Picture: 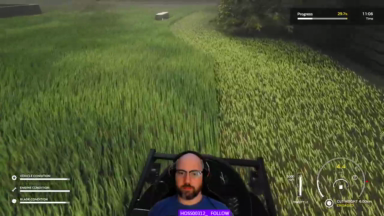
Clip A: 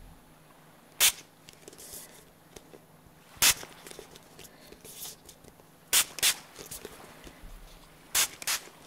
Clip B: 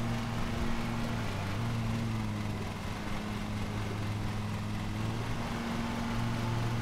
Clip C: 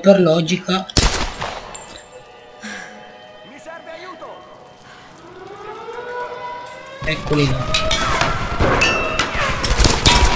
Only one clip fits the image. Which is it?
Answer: B